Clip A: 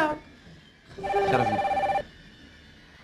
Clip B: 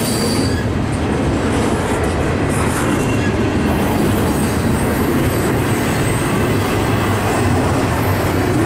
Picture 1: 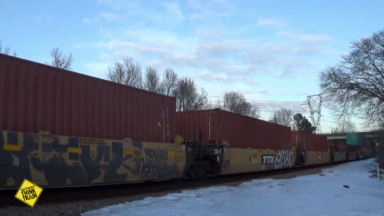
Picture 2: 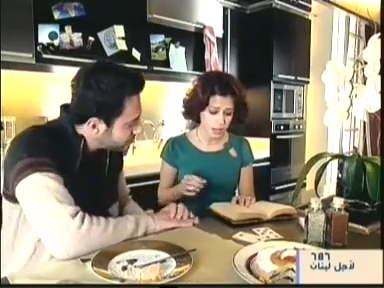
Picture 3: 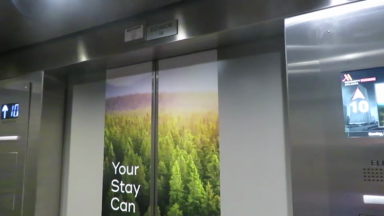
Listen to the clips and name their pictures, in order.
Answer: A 2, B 1